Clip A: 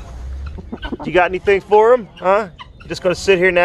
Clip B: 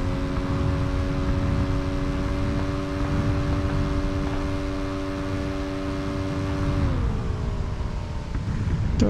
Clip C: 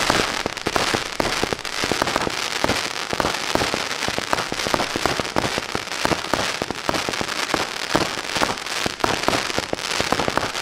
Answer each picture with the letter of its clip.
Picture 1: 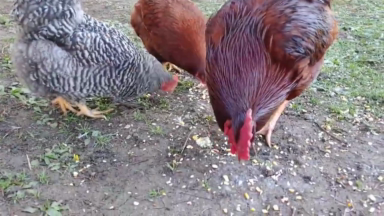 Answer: A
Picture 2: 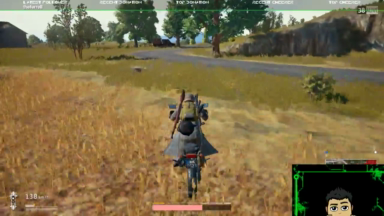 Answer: B